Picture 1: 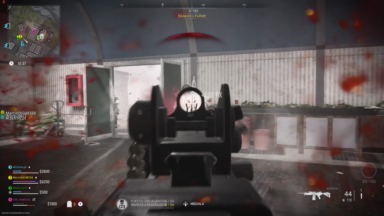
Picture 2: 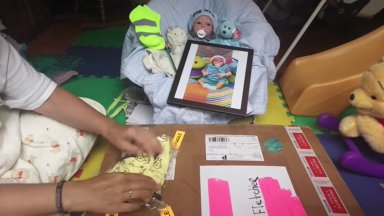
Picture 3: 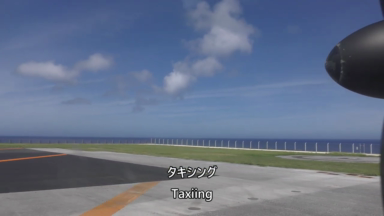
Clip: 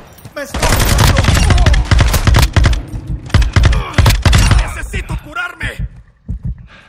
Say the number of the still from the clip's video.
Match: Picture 1